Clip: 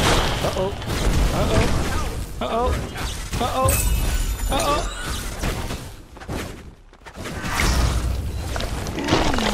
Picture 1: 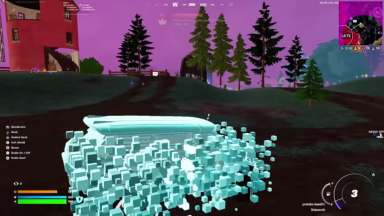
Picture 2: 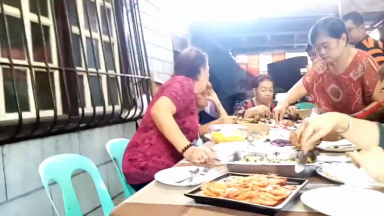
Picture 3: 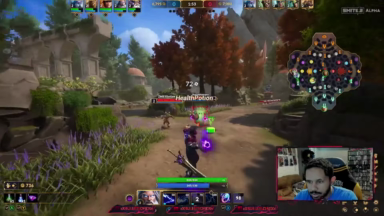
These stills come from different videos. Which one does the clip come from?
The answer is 3